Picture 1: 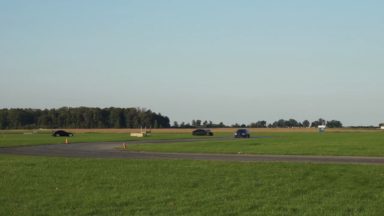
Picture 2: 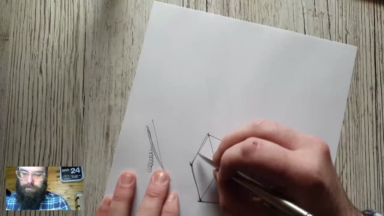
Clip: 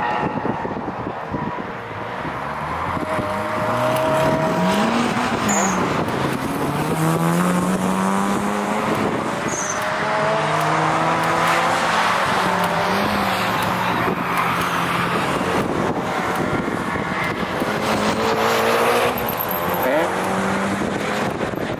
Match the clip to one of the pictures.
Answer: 1